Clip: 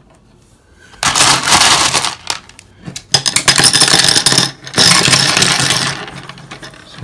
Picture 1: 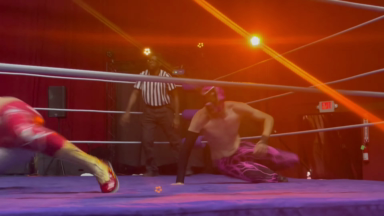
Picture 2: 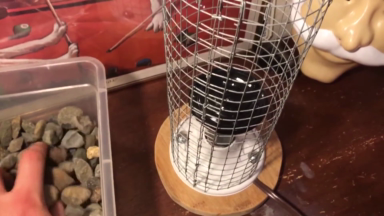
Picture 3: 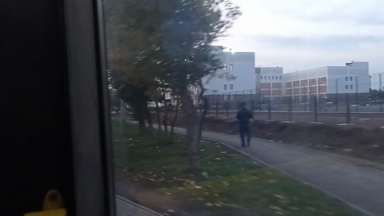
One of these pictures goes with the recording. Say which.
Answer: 2